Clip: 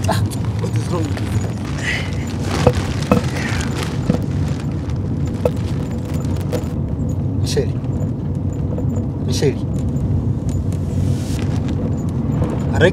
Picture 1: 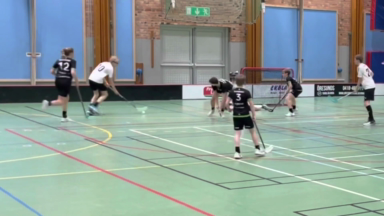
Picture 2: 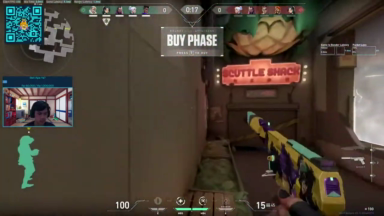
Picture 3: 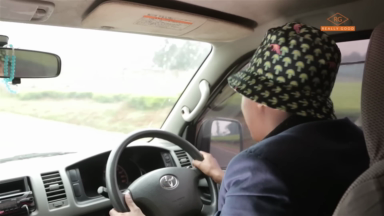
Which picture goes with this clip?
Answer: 3